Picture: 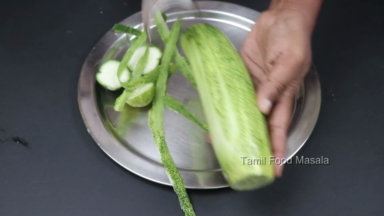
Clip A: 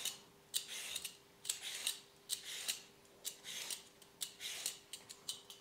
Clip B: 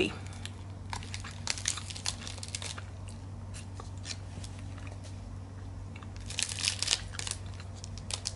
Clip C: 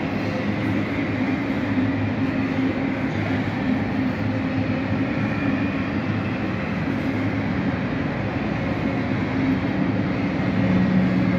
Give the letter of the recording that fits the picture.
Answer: A